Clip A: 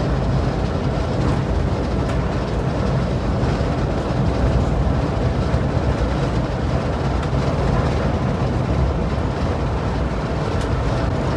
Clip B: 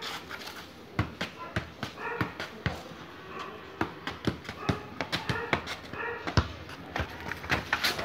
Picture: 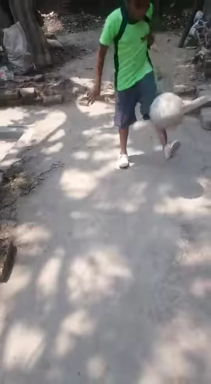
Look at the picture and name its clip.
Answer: B